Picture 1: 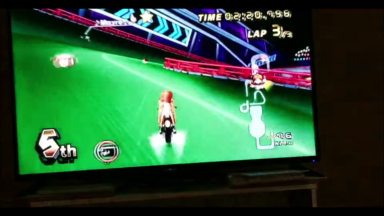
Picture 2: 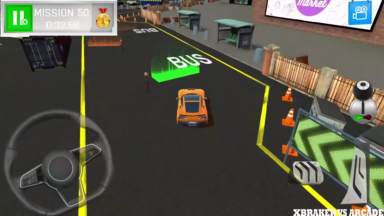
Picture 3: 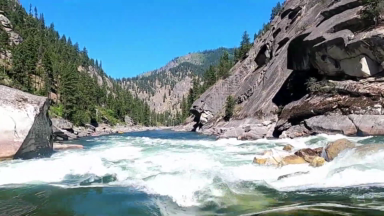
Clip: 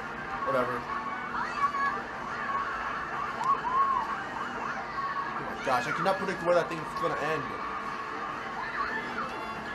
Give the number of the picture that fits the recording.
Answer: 1